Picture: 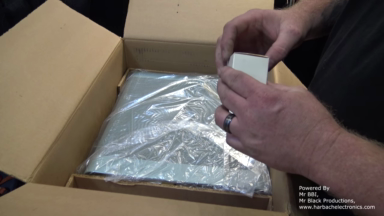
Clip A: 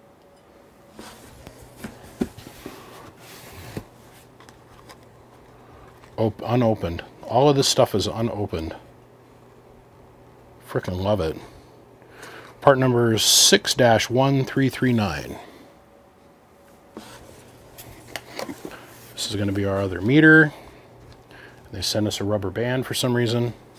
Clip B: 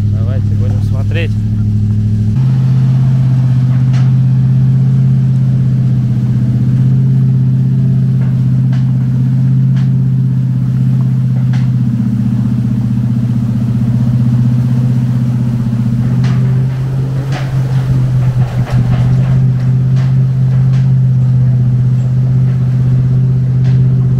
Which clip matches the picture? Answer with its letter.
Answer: A